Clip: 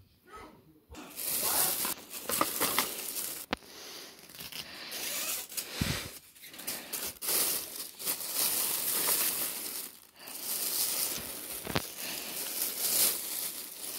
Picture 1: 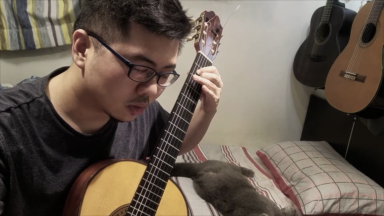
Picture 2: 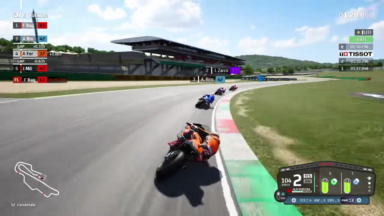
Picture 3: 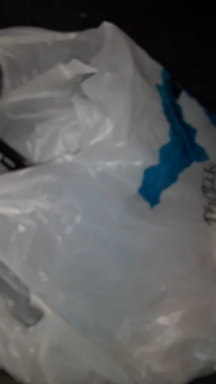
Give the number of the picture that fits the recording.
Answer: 3